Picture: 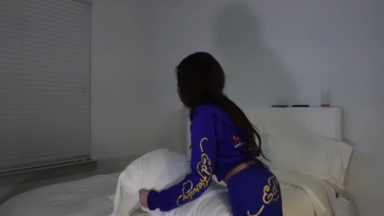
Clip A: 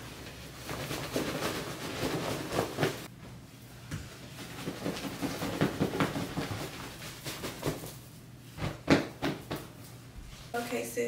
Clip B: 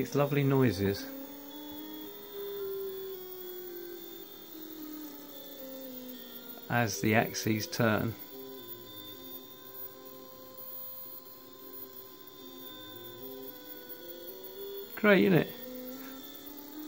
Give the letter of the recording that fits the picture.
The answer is A